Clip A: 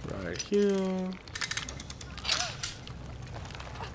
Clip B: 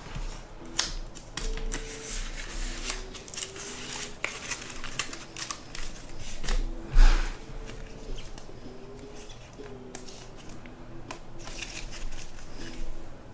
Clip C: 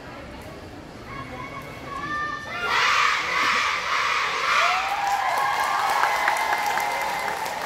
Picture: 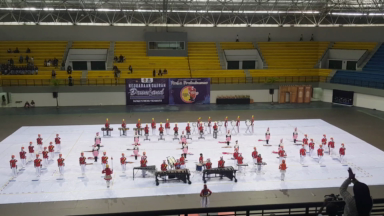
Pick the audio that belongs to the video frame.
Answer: C